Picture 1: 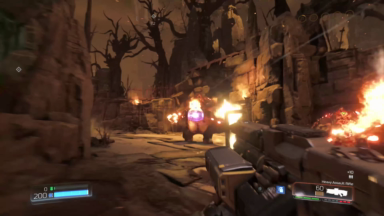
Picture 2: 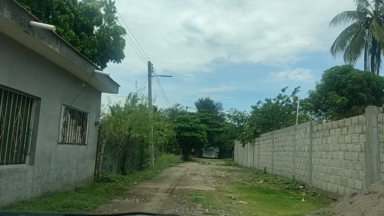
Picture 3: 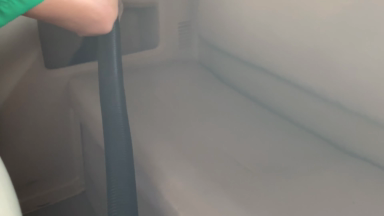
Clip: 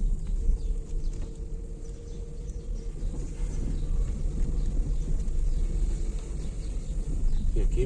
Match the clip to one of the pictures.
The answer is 2